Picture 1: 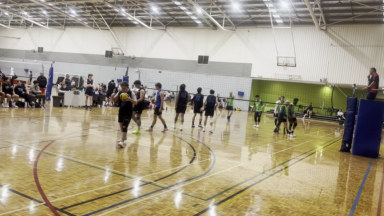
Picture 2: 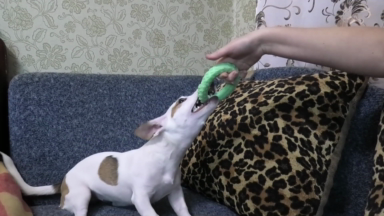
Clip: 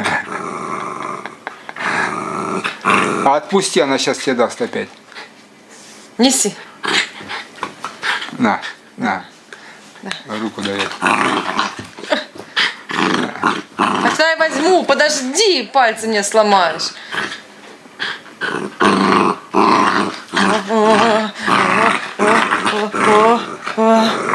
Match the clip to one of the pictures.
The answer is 2